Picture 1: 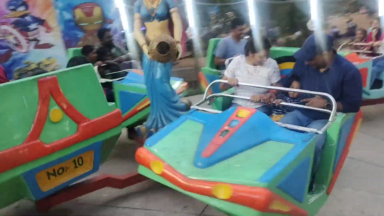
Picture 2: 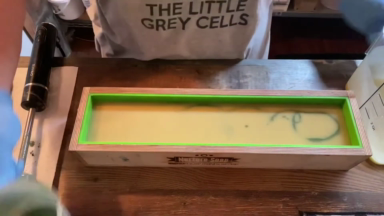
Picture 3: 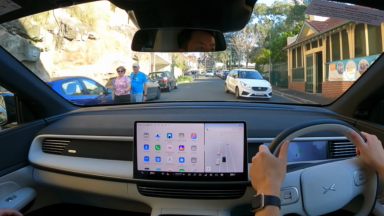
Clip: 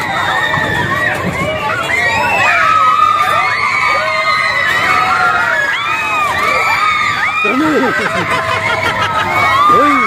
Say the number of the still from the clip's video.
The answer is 1